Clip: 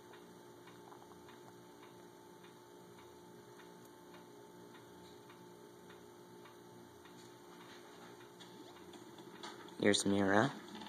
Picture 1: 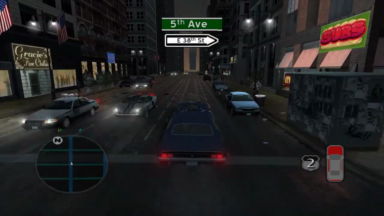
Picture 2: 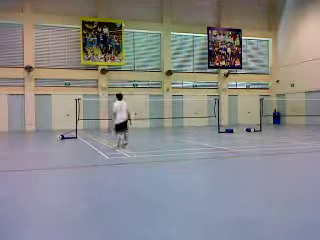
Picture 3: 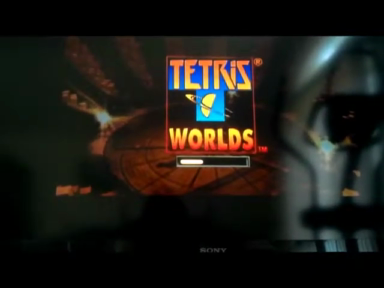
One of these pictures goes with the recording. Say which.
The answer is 3